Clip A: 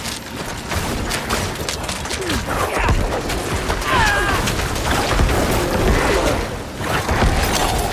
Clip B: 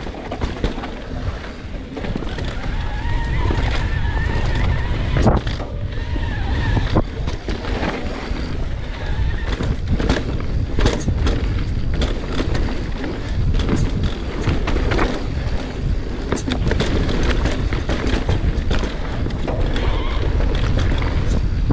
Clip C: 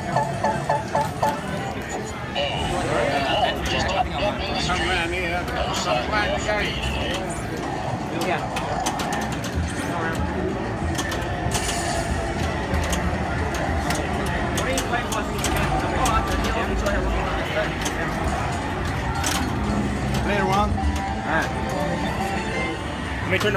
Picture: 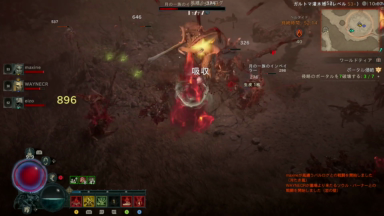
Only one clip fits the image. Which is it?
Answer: A